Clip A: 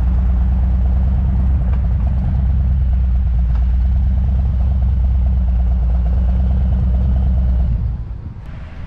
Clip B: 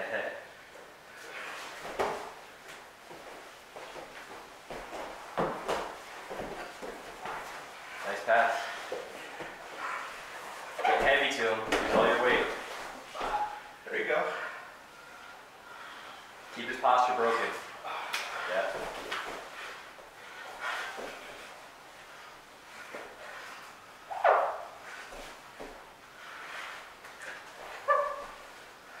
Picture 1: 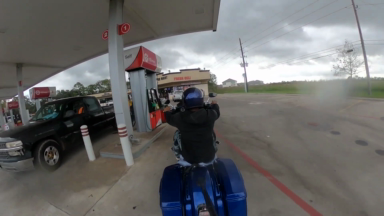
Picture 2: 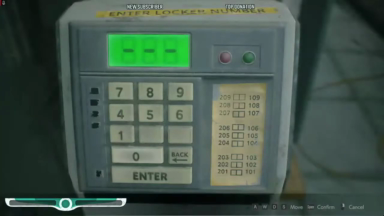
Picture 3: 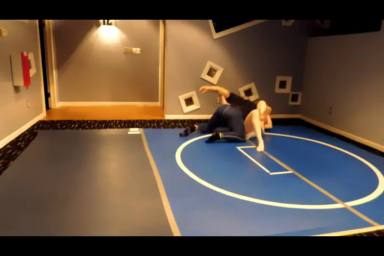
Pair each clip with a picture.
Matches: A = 1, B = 3